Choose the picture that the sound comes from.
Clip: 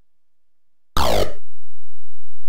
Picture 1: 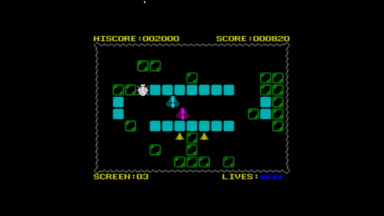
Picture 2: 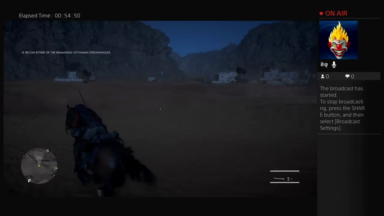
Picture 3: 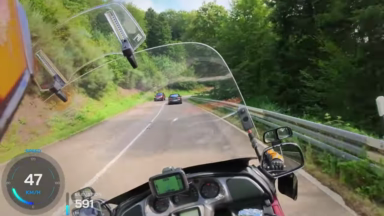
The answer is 1